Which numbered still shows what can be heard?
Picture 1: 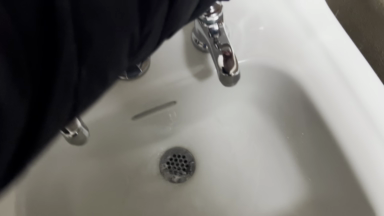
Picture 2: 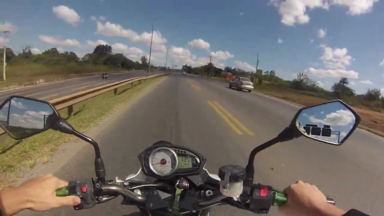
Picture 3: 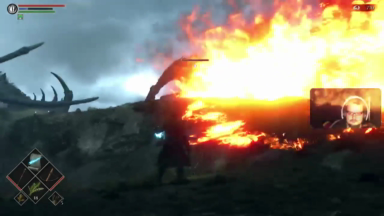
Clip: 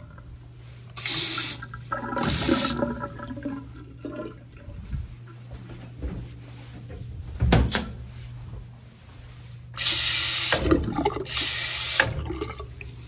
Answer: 1